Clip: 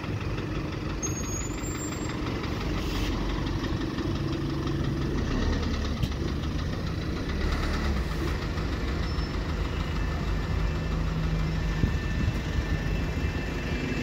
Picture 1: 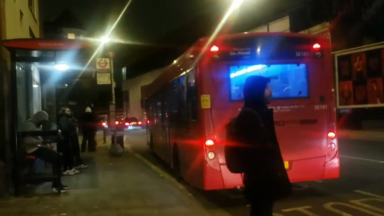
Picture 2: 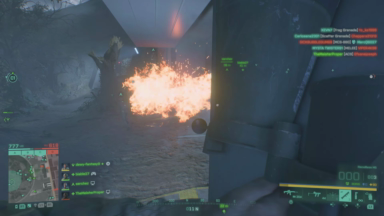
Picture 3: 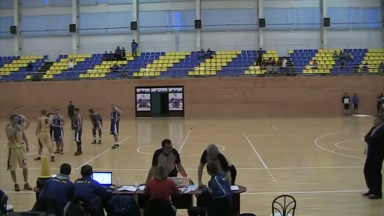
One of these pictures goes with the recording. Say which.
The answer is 1